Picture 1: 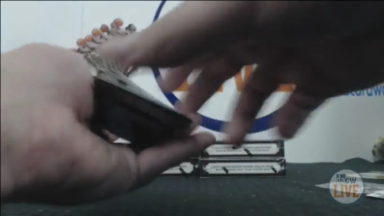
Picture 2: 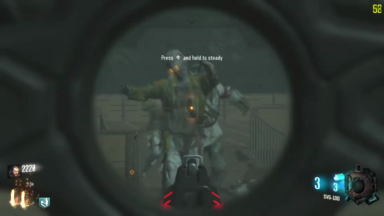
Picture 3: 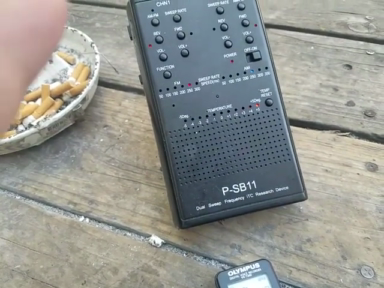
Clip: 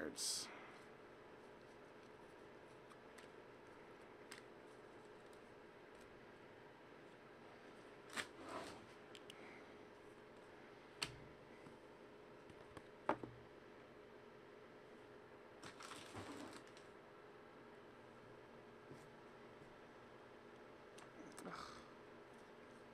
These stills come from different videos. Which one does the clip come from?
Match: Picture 1